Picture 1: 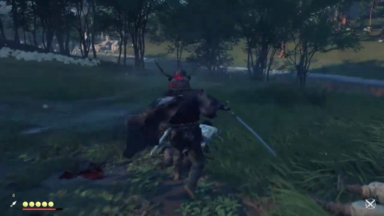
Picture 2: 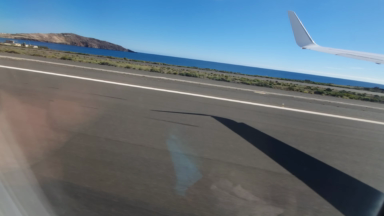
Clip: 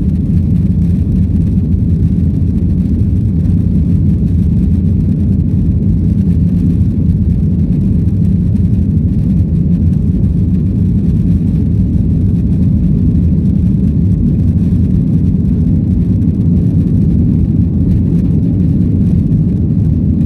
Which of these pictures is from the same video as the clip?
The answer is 2